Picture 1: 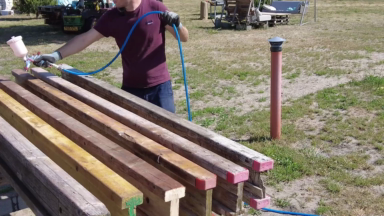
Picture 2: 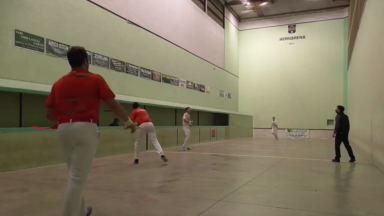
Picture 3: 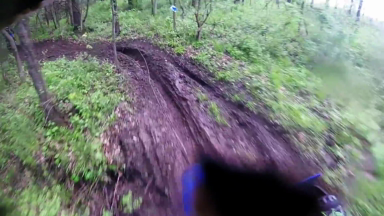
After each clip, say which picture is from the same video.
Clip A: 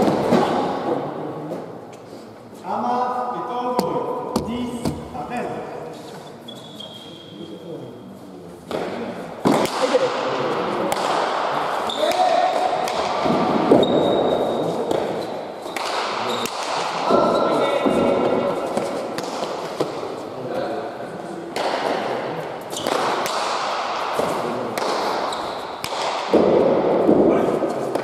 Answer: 2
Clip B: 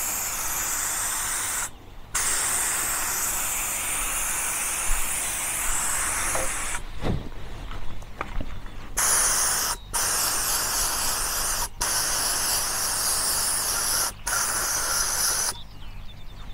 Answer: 1